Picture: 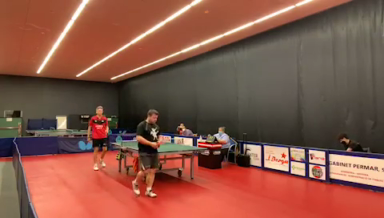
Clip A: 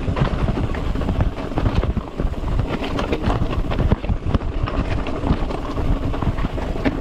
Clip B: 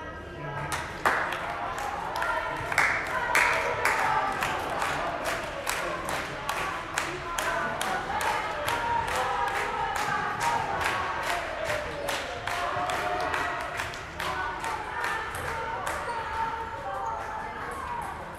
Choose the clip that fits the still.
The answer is B